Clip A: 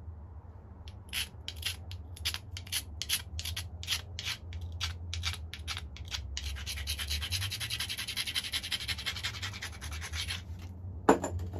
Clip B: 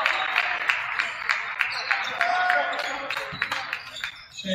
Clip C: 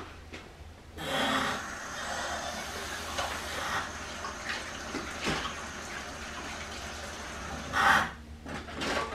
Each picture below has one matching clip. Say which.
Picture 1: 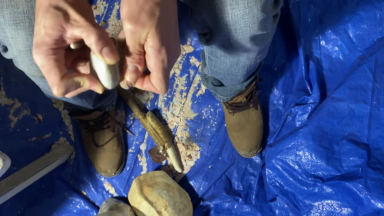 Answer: A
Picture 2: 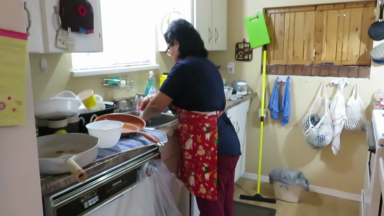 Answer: C